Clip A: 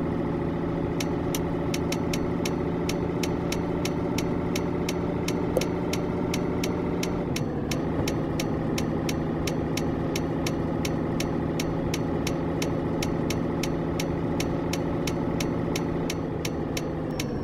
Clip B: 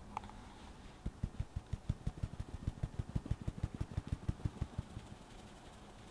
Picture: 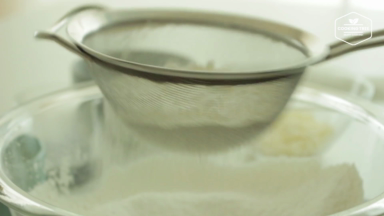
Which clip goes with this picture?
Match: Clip B